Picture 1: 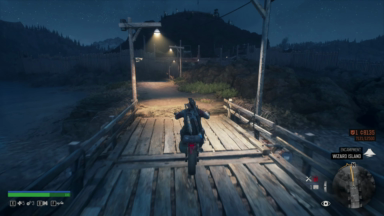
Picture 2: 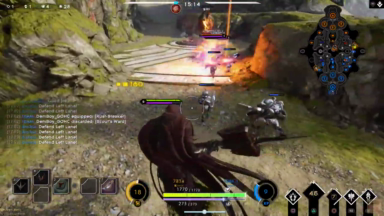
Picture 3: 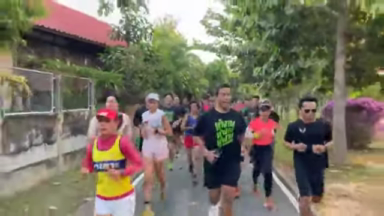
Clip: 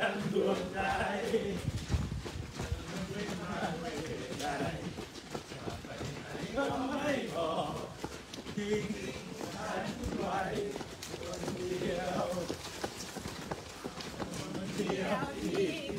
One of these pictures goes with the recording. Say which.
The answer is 3